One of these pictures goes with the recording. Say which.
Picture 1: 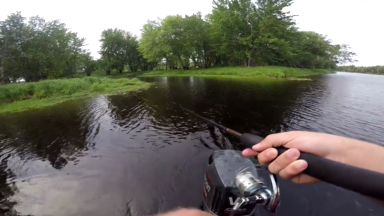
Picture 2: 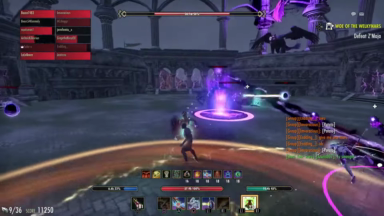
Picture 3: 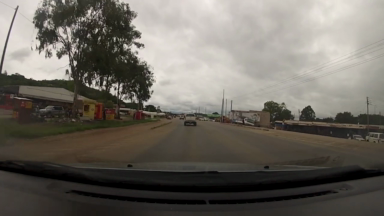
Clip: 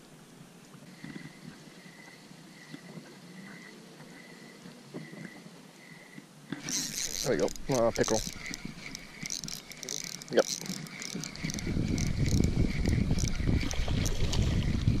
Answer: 1